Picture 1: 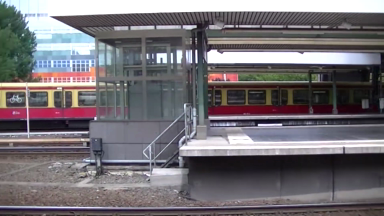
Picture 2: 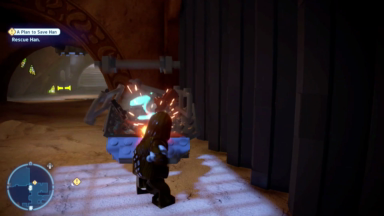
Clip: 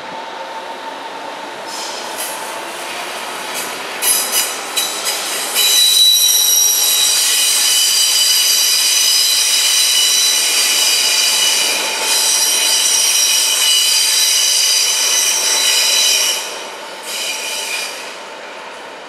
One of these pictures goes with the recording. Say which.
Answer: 1